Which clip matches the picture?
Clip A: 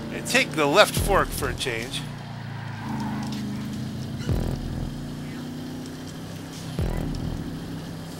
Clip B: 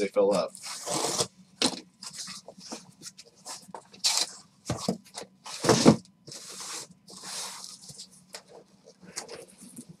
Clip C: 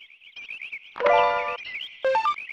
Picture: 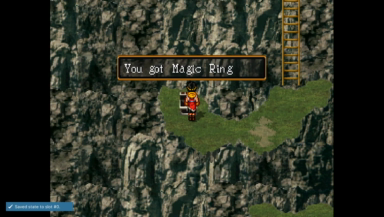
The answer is C